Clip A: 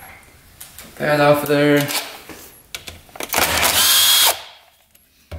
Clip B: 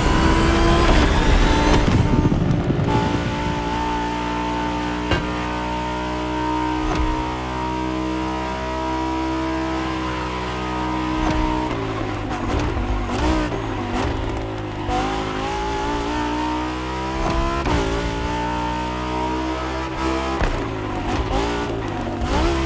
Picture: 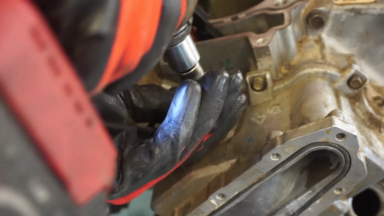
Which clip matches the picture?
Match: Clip A